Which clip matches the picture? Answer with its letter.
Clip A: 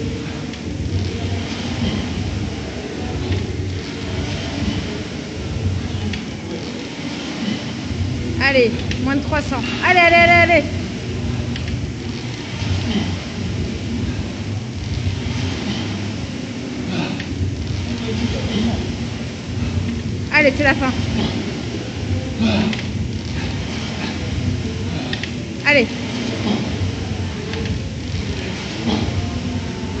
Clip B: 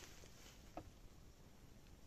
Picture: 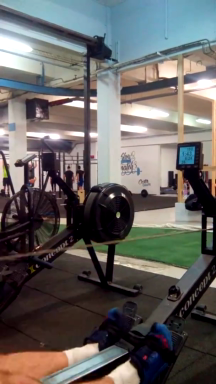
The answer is A